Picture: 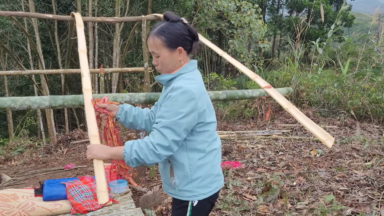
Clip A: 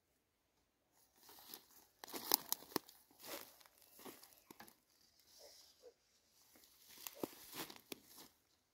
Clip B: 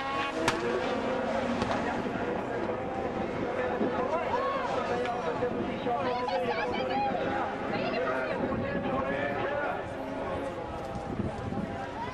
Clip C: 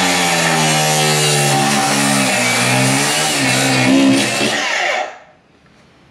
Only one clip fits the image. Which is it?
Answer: A